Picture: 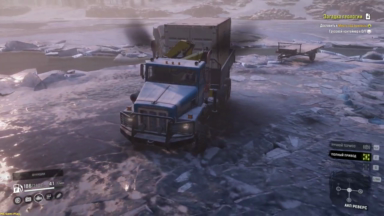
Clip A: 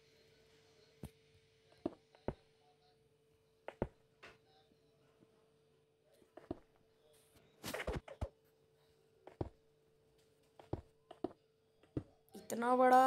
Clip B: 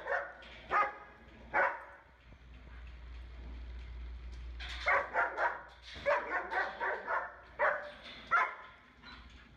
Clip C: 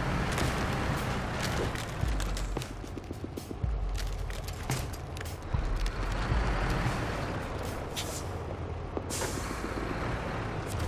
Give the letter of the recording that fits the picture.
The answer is C